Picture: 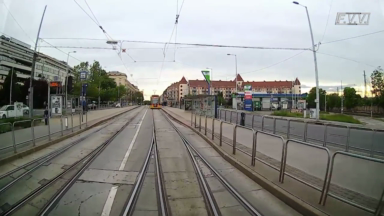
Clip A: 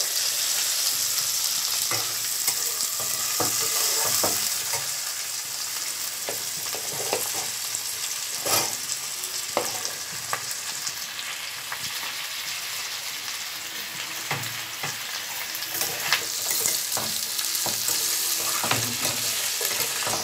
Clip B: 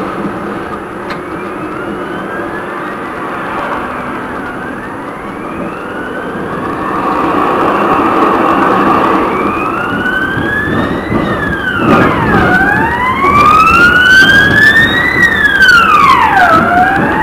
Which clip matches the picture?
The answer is B